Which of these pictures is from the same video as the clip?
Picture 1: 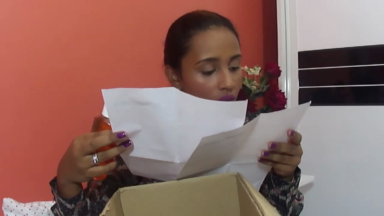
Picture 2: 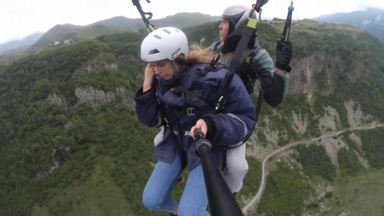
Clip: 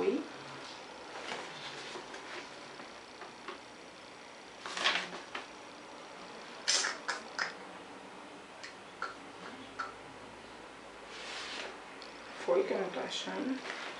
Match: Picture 1